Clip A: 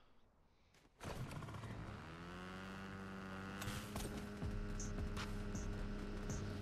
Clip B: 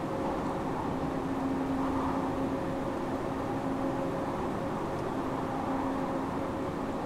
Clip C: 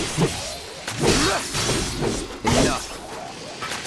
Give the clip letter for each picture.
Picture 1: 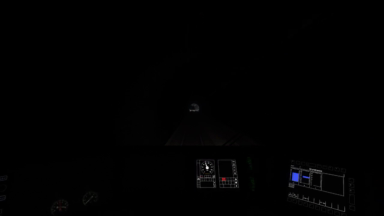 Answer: B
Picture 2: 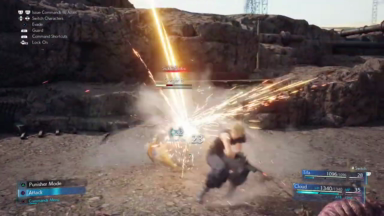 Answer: C